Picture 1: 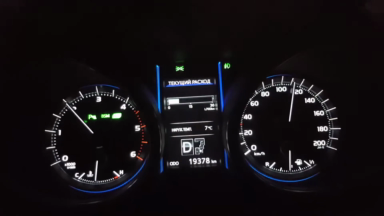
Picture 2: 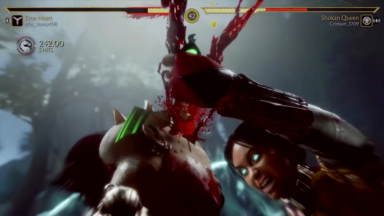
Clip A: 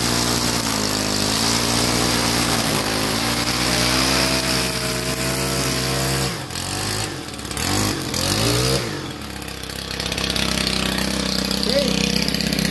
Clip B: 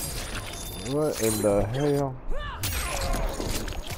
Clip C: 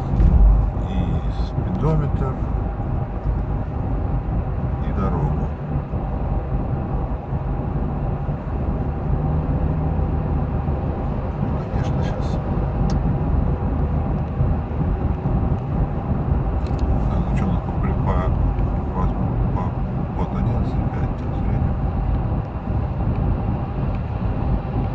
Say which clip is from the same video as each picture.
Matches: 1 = C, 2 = B